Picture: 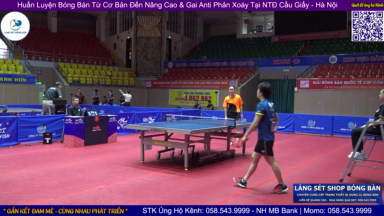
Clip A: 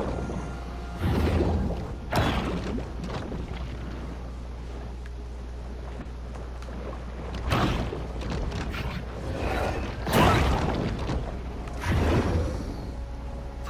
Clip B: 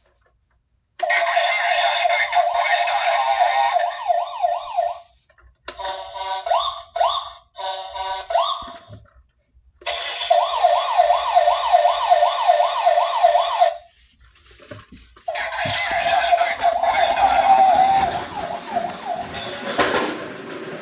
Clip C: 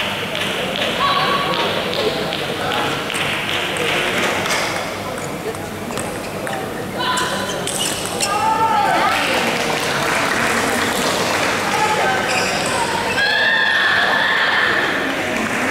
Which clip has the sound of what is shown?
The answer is C